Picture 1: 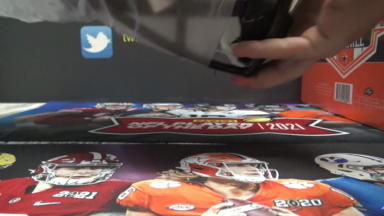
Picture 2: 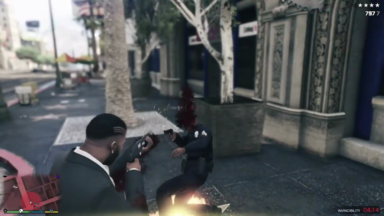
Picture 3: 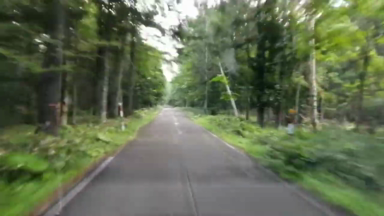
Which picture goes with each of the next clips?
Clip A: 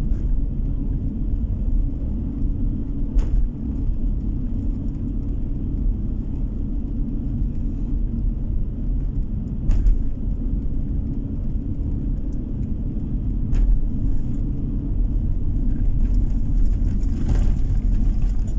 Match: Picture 3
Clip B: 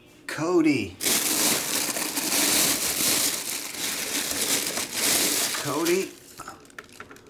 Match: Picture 1